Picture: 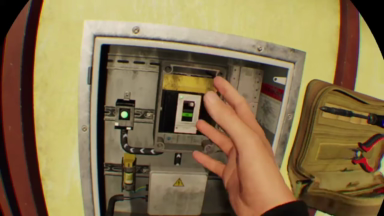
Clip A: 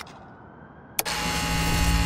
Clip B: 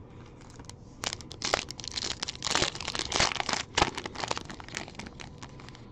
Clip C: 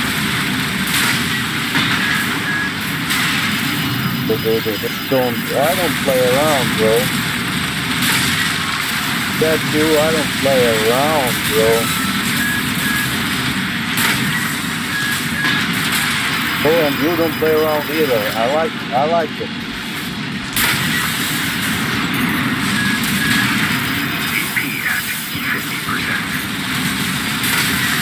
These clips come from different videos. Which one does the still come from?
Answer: A